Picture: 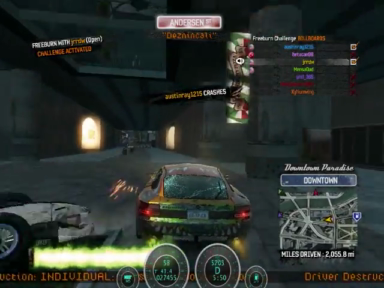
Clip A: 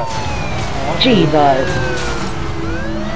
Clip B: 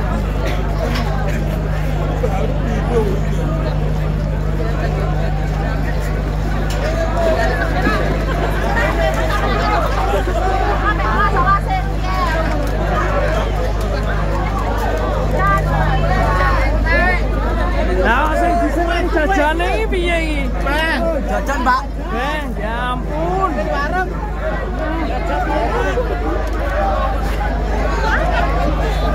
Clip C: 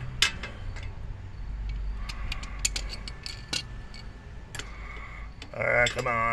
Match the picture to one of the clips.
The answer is A